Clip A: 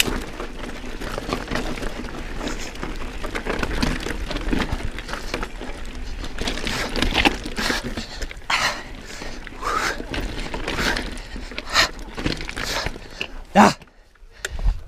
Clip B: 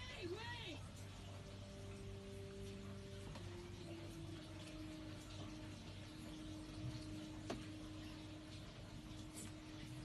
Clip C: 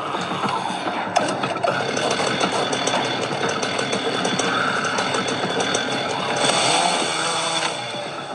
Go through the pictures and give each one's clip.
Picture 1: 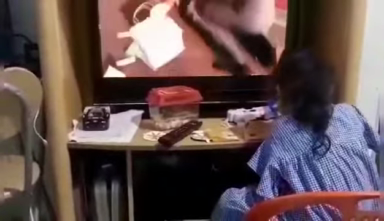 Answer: B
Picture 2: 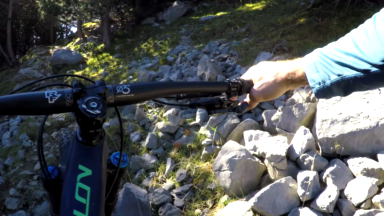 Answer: A